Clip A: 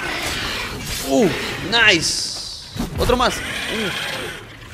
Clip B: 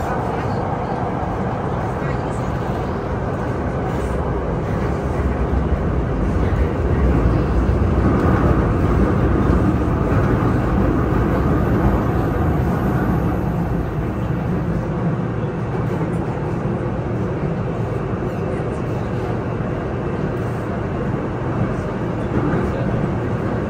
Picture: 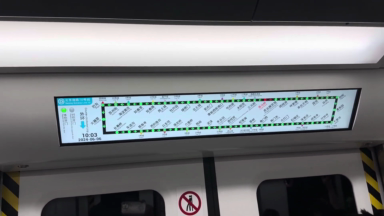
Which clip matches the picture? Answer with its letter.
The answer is B